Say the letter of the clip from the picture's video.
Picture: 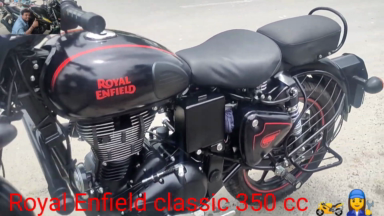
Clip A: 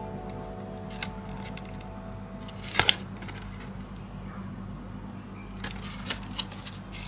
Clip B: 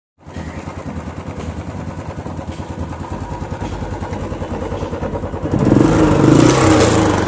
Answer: B